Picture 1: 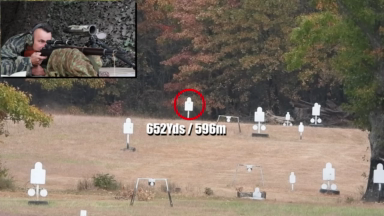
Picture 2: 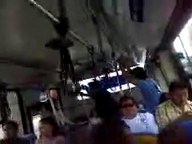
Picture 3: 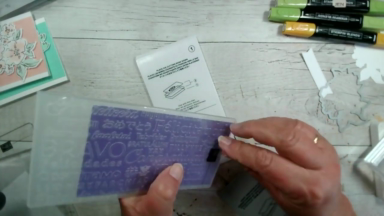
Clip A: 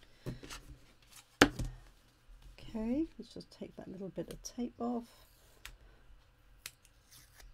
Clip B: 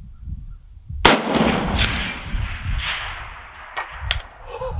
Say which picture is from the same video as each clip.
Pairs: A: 3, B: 1